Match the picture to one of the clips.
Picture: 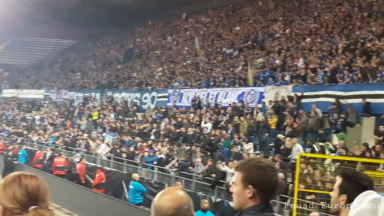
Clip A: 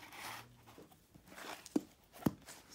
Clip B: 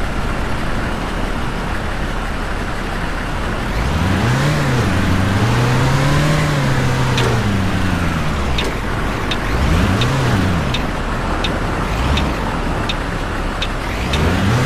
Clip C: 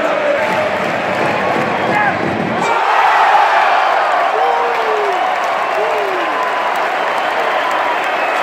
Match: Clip C